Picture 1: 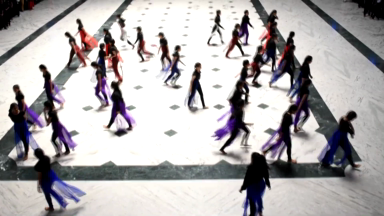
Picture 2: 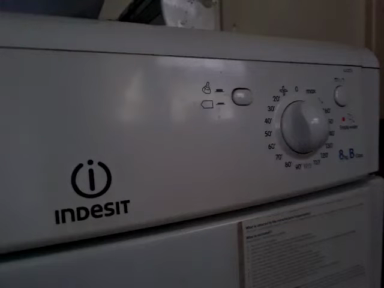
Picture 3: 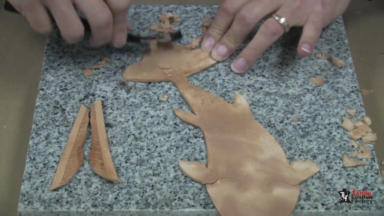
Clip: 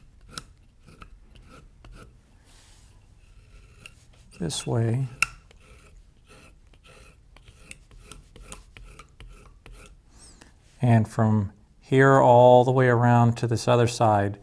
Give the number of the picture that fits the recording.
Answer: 3